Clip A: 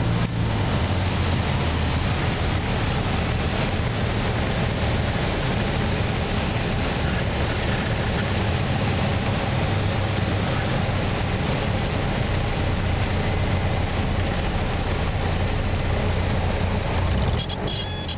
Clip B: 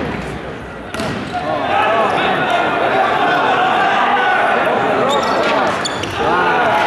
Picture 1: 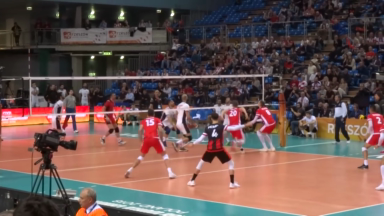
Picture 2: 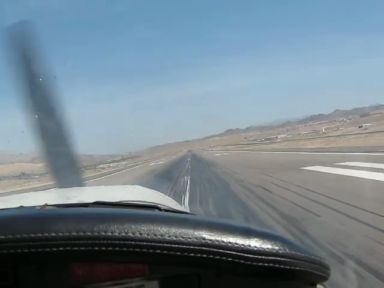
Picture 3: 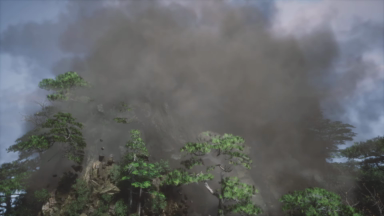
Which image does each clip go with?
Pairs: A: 2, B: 1